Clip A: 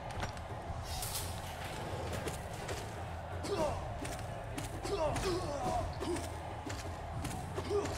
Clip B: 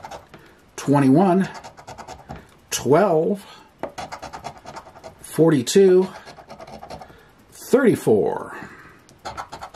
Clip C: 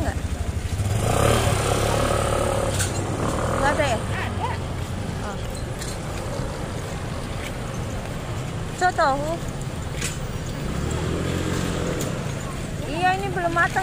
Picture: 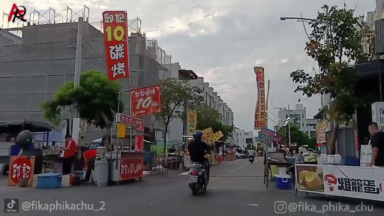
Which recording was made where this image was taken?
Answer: C